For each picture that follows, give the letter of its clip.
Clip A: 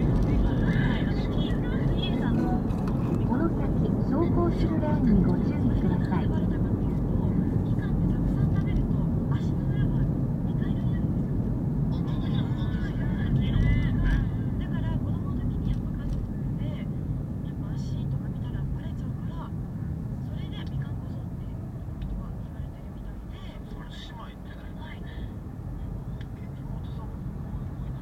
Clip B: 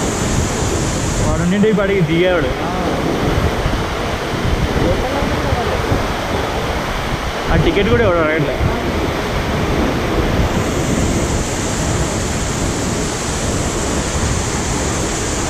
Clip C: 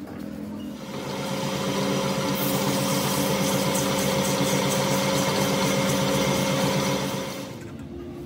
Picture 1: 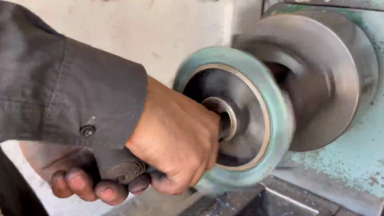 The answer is C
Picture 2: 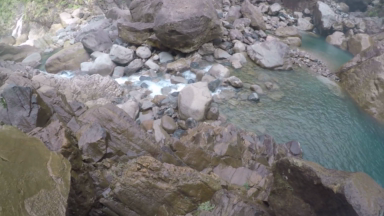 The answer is B